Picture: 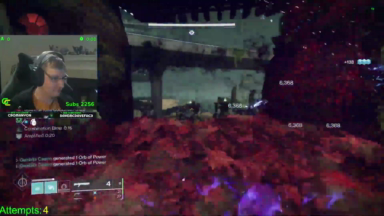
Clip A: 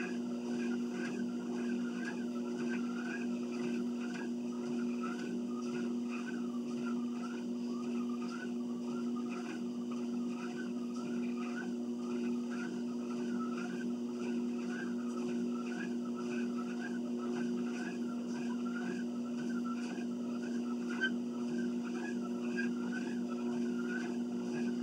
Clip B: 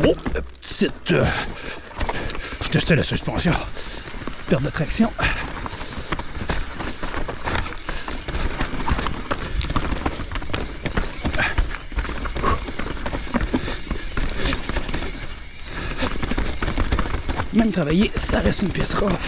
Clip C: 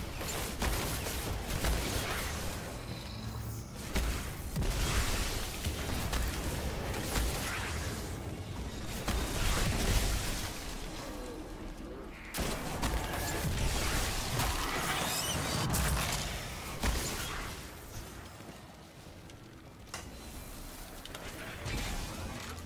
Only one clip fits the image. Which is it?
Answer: C